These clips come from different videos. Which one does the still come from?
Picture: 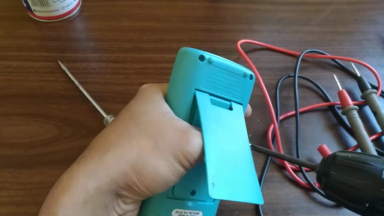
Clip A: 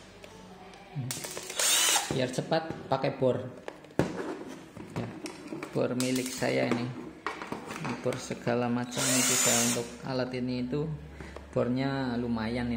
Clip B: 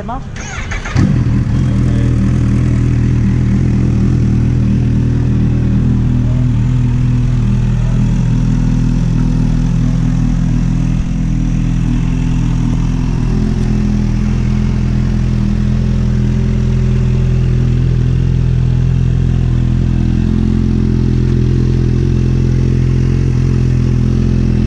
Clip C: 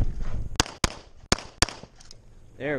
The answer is A